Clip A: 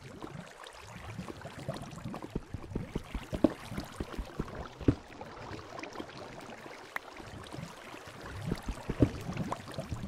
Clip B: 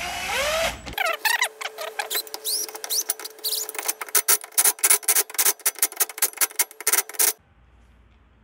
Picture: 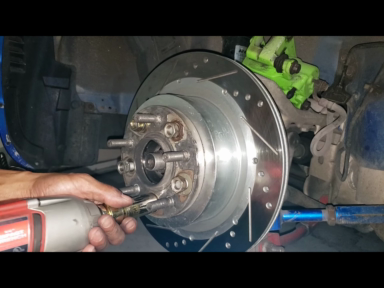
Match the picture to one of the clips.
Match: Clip B